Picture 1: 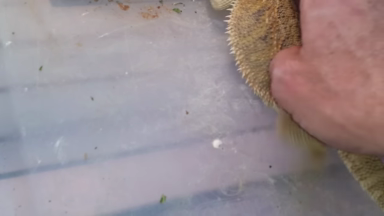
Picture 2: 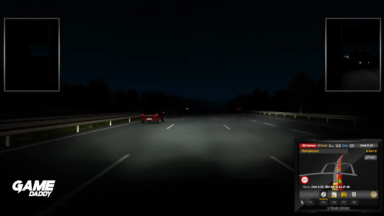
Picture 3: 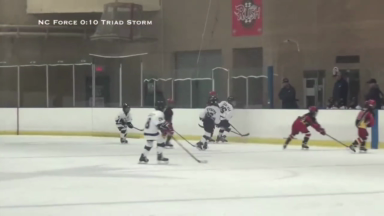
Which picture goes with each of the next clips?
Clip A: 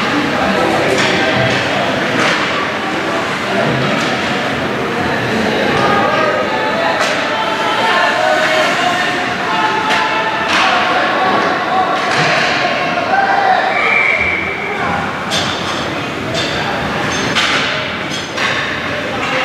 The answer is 3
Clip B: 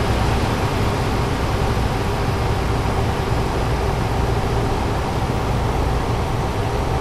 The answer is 2